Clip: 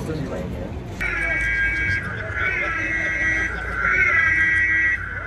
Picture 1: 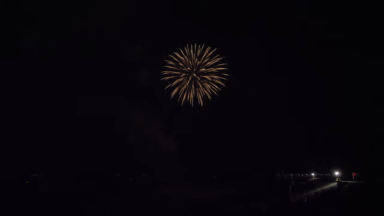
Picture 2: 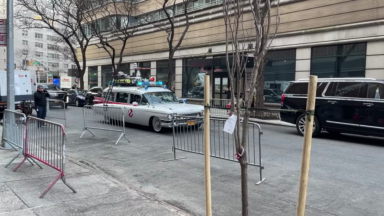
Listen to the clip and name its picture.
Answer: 2